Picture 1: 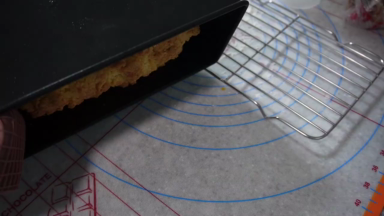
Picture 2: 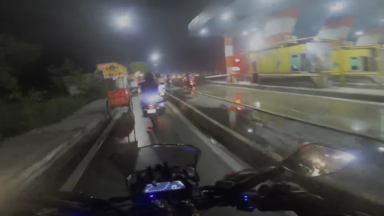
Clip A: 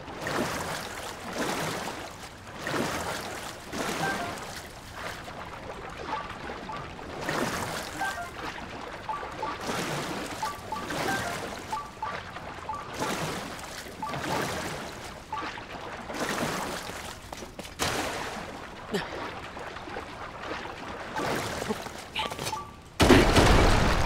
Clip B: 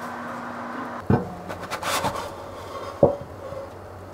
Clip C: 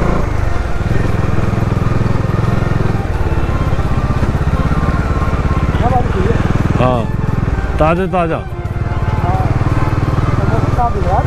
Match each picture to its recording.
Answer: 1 B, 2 C